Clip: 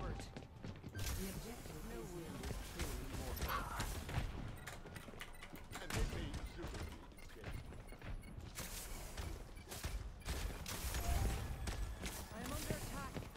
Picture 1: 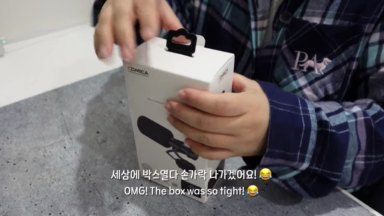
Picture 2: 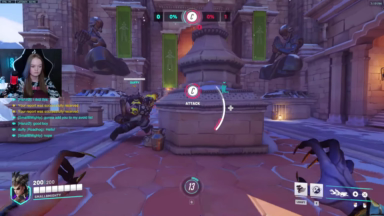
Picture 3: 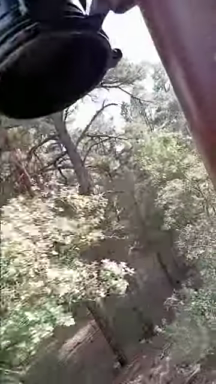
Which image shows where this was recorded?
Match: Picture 2